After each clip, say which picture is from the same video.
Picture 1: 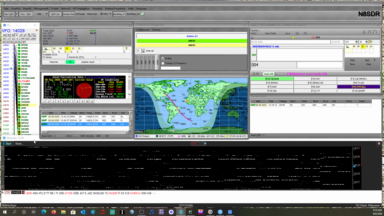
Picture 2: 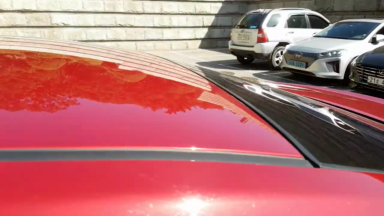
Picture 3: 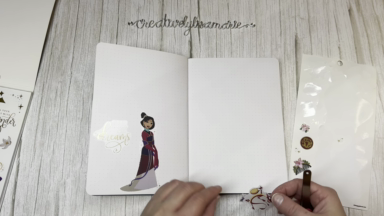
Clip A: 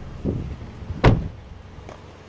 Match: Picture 2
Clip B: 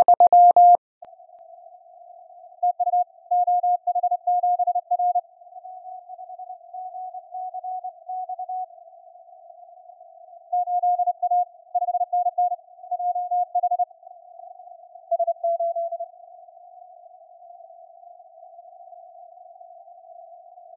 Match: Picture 1